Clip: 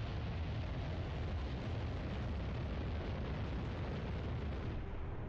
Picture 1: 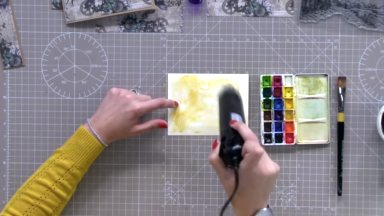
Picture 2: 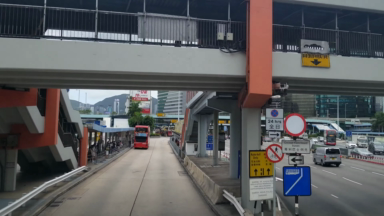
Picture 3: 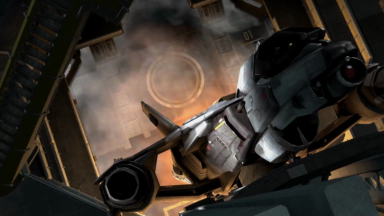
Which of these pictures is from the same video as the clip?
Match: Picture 3